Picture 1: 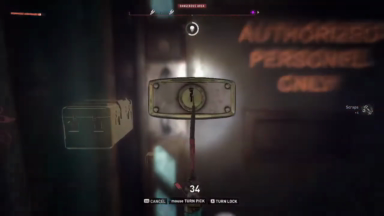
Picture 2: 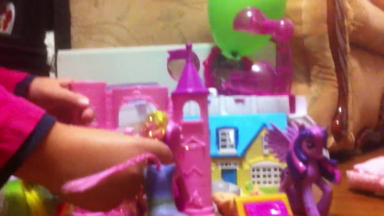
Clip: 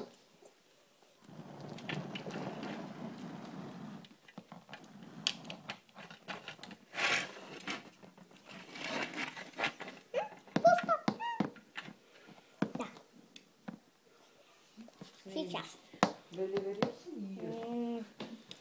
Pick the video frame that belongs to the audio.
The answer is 2